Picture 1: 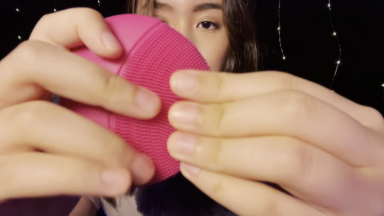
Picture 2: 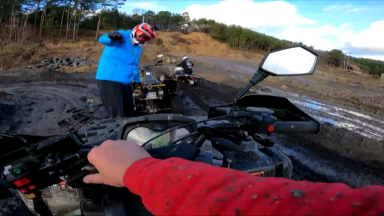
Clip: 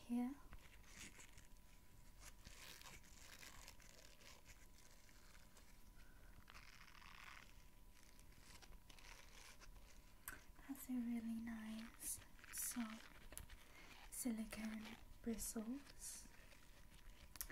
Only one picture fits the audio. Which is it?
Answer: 1